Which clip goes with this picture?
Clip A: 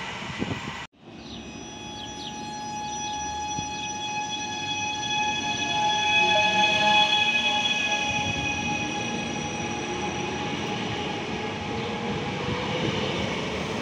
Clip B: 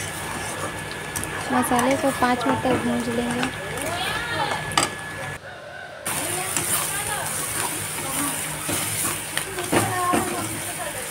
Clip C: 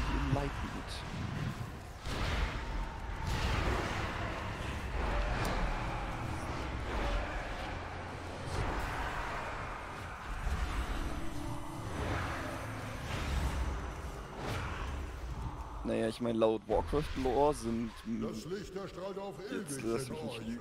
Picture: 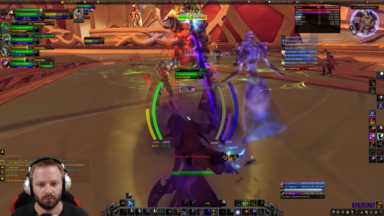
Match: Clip C